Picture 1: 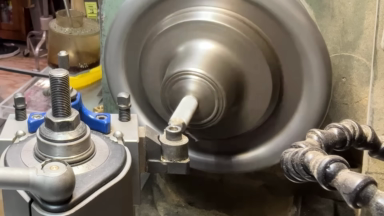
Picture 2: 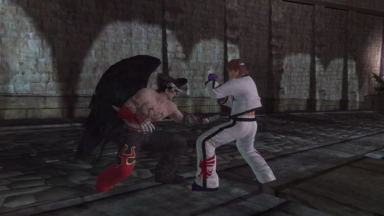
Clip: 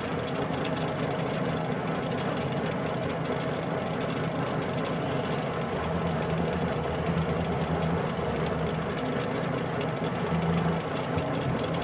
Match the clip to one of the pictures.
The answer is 1